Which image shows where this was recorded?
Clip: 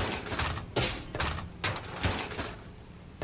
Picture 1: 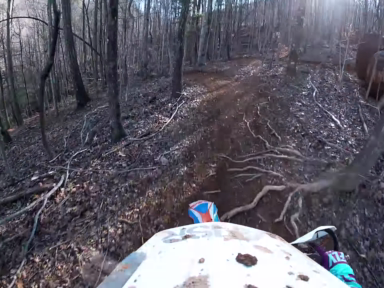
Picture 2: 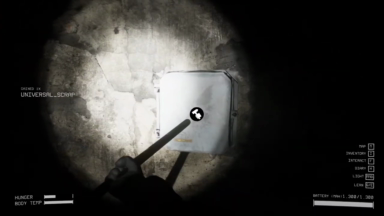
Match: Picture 2